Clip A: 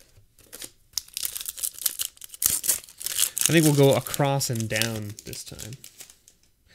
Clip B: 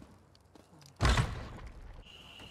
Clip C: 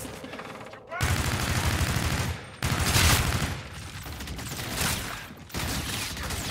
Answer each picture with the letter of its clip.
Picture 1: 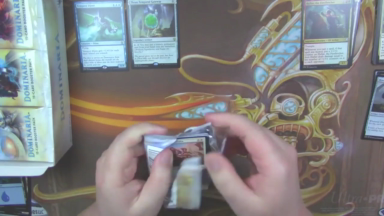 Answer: A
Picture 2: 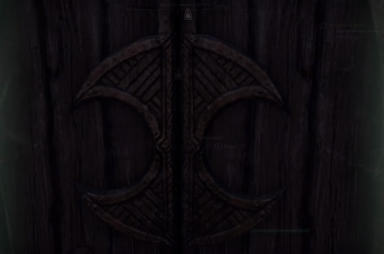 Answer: B